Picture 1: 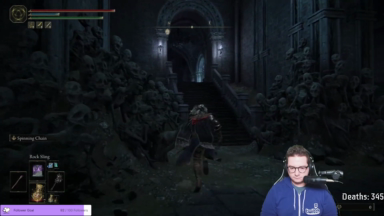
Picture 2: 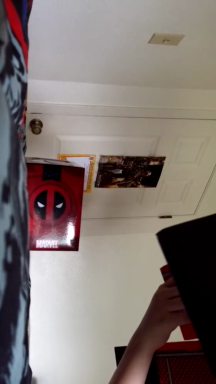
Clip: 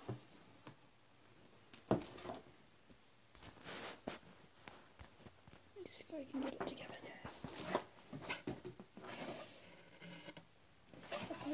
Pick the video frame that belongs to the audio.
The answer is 2